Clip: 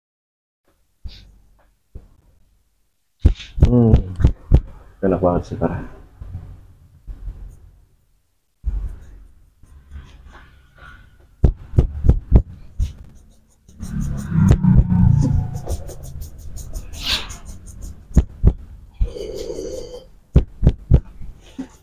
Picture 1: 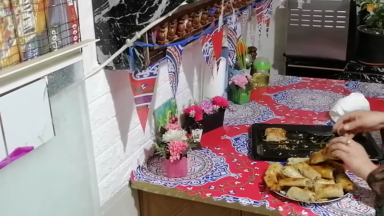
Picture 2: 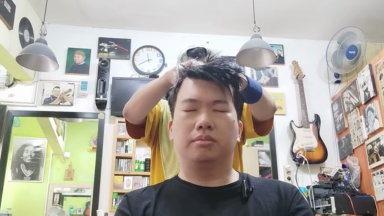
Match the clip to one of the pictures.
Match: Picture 2